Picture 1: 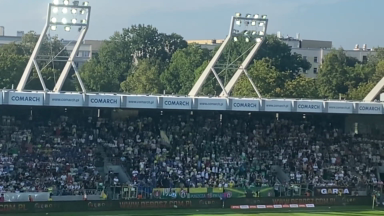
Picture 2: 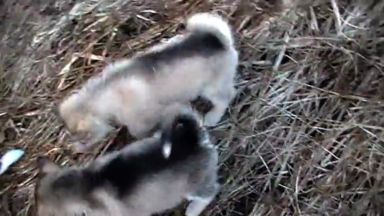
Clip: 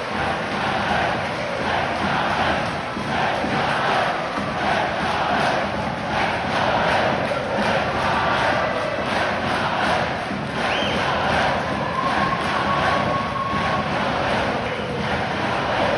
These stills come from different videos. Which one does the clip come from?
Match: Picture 1